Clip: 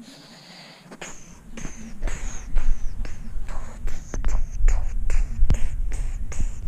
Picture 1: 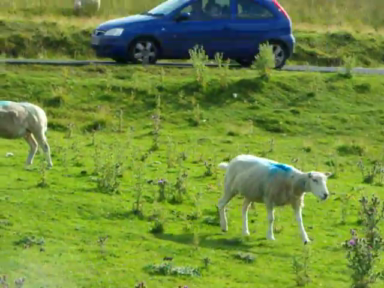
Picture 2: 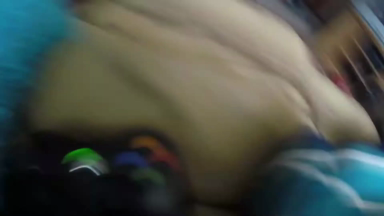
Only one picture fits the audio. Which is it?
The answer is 2